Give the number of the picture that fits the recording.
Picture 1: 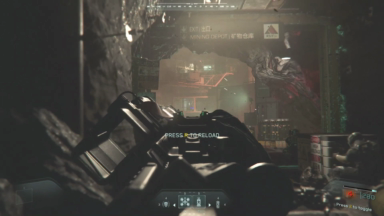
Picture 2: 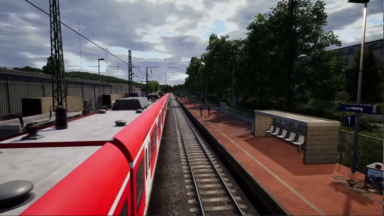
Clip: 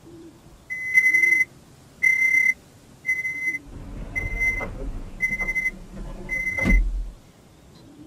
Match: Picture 2